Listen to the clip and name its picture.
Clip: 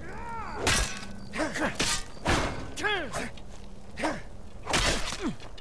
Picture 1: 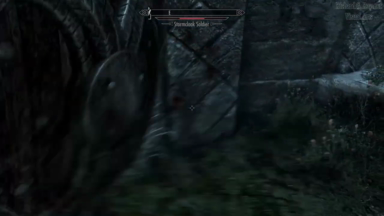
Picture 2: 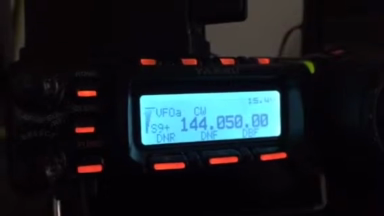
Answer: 1